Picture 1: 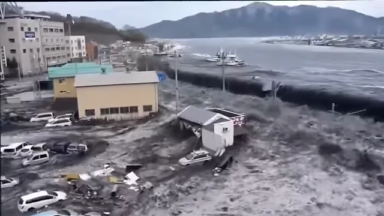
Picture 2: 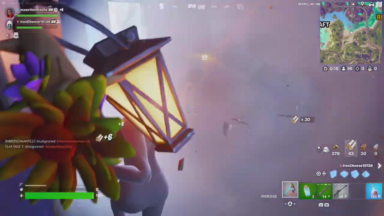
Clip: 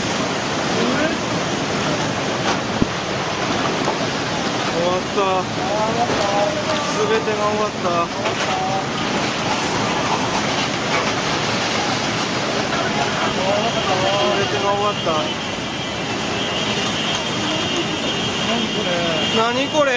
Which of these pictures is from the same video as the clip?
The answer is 1